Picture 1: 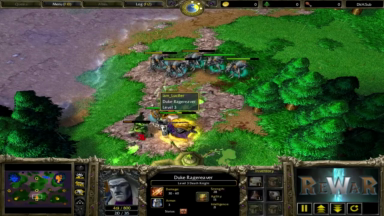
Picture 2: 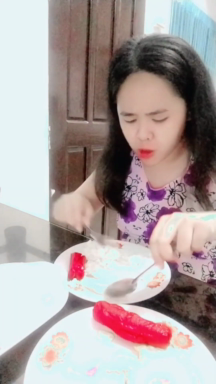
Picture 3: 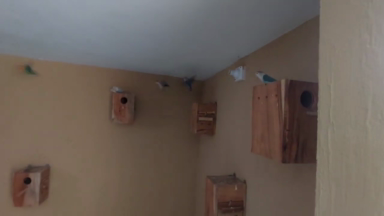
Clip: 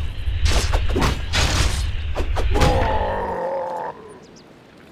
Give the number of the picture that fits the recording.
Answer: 1